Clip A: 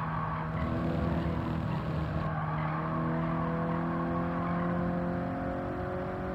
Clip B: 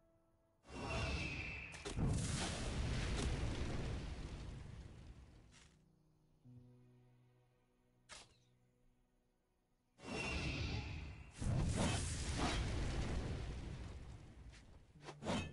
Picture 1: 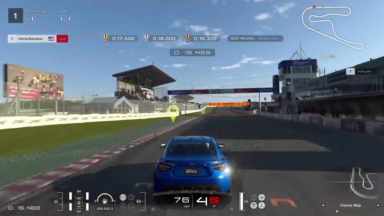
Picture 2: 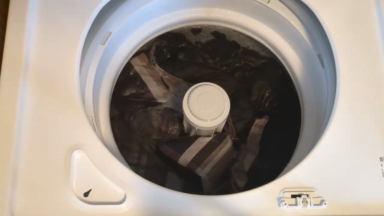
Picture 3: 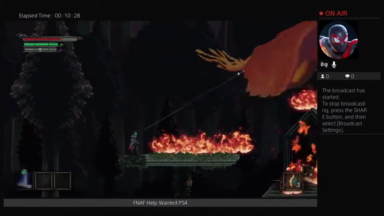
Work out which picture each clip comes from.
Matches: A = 1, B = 3